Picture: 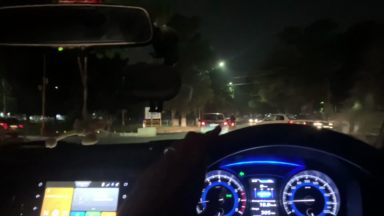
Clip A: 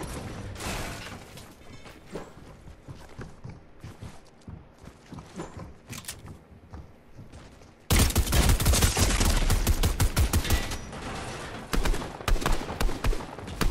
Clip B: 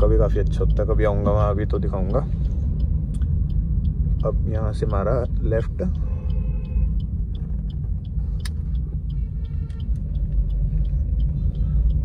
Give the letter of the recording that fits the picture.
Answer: B